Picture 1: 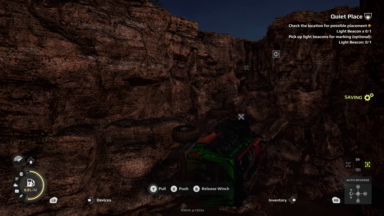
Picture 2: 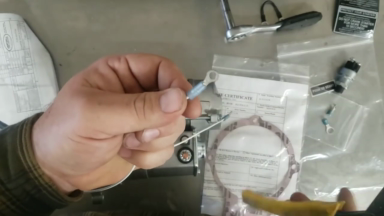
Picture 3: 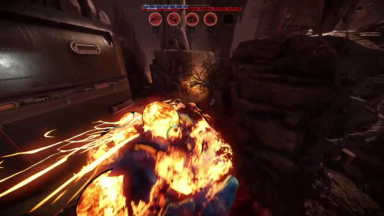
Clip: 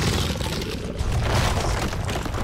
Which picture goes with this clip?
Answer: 3